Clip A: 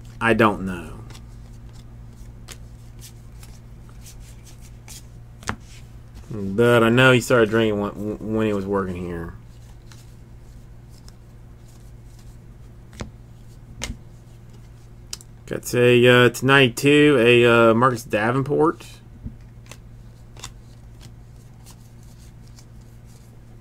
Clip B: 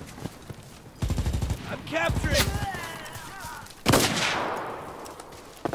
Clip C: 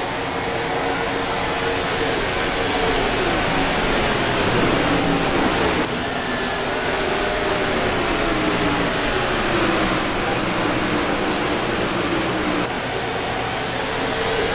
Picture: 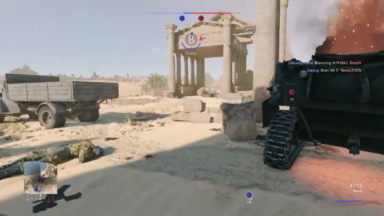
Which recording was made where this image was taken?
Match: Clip B